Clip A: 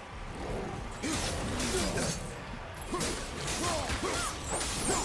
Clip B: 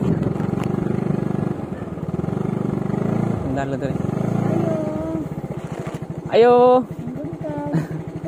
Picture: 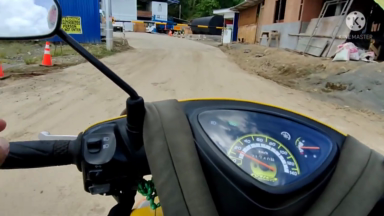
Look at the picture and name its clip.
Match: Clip B